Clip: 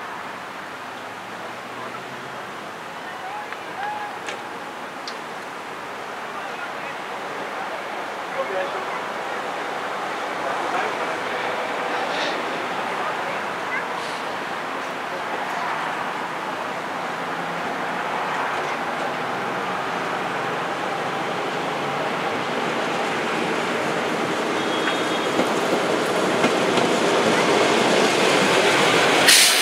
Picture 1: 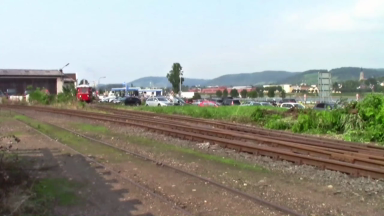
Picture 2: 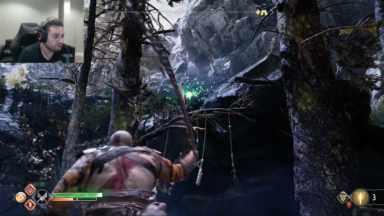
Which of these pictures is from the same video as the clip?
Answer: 1